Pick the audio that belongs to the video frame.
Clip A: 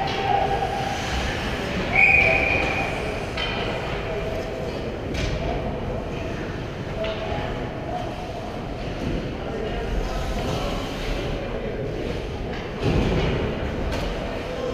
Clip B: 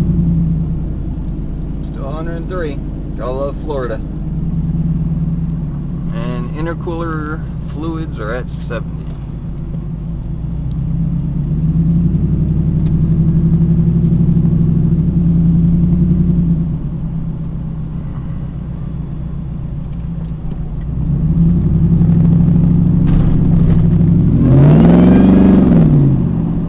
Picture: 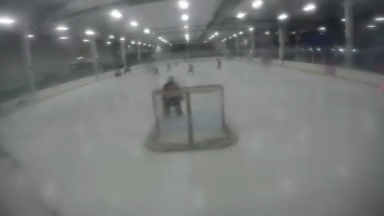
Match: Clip A